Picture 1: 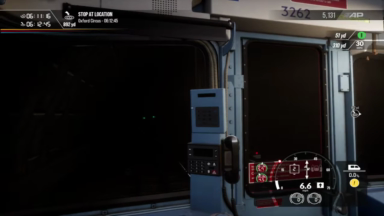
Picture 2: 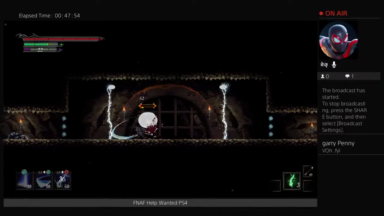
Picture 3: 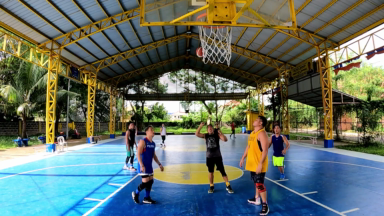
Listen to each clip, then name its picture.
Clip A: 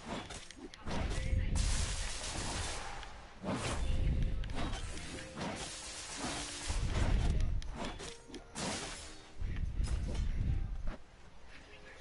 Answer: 2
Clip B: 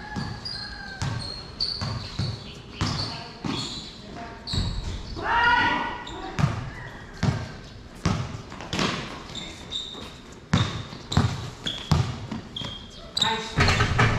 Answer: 3